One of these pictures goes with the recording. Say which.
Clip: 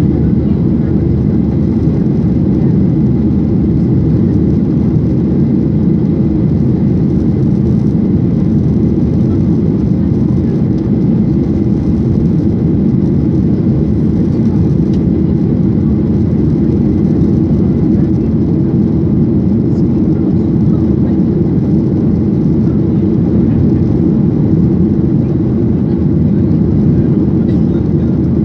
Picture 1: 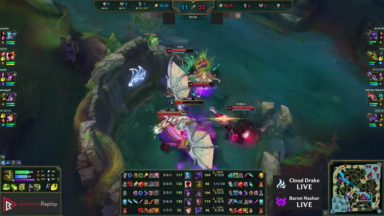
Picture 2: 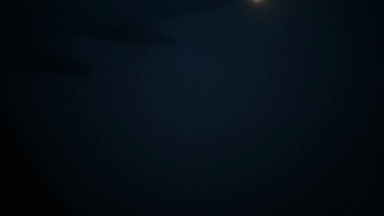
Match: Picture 2